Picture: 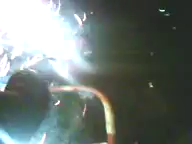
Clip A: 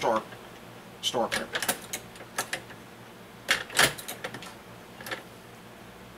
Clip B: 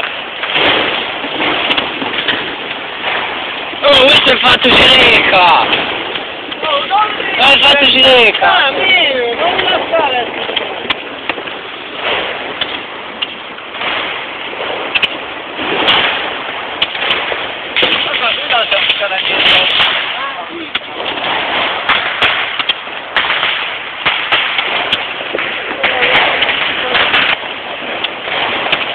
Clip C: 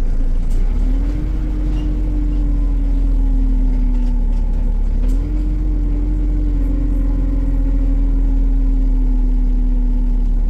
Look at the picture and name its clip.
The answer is B